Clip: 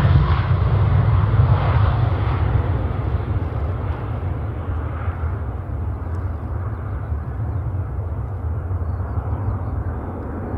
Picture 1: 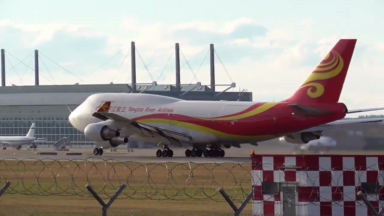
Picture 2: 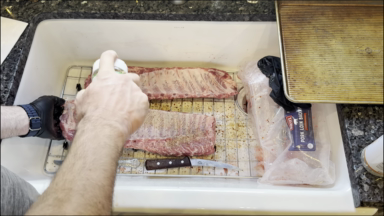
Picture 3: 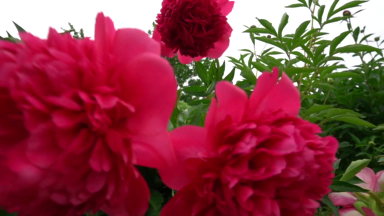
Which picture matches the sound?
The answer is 1